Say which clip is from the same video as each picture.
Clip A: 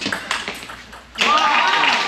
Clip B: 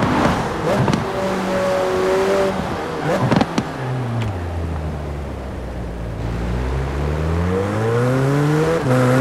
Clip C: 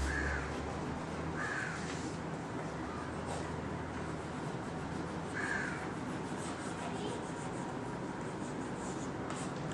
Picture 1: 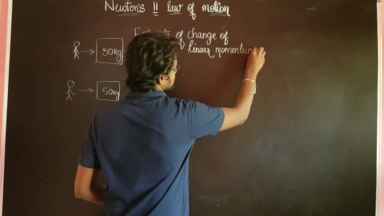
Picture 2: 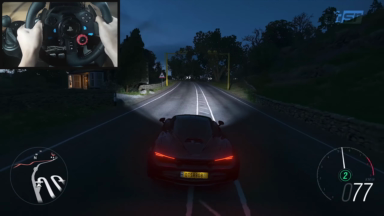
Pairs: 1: C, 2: B